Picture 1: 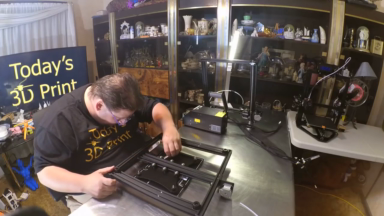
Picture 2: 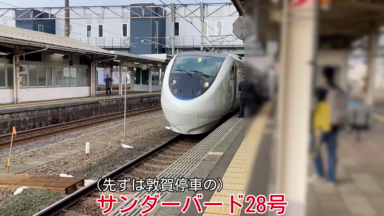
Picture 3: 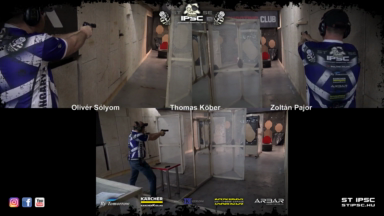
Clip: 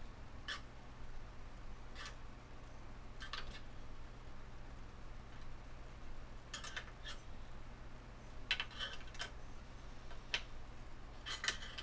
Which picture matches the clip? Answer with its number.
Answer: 1